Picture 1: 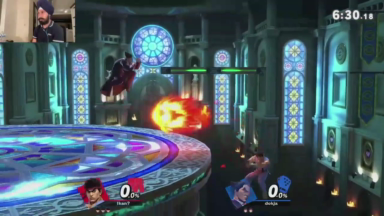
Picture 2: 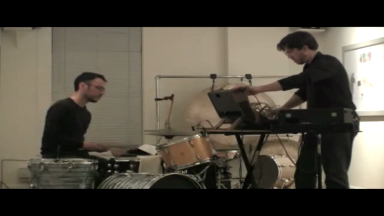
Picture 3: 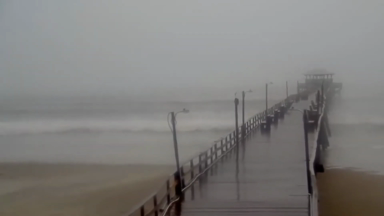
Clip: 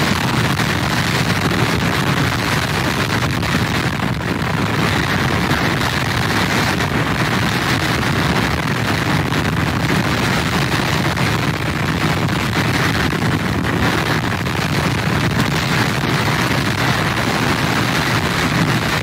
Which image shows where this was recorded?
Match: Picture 3